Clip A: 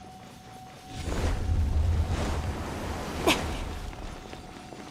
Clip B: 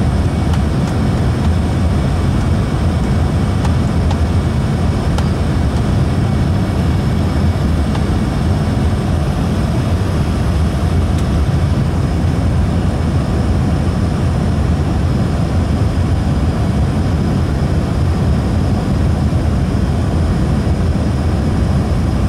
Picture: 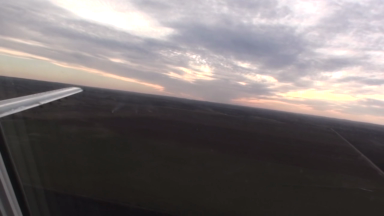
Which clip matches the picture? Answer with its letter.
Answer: B